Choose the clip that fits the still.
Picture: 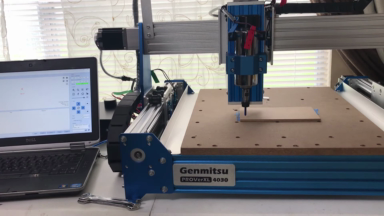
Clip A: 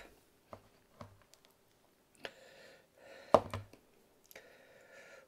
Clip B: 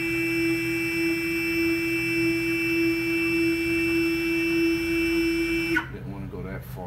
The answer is B